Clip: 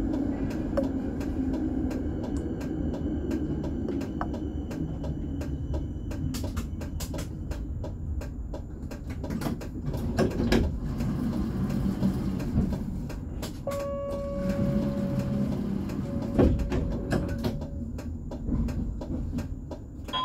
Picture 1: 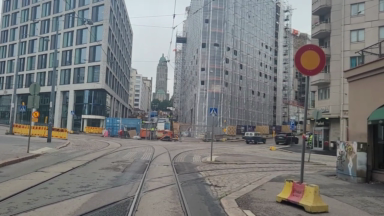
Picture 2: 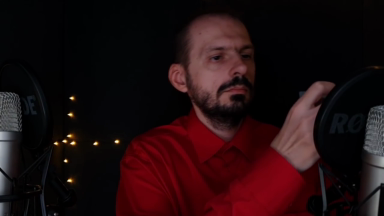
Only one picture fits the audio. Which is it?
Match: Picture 1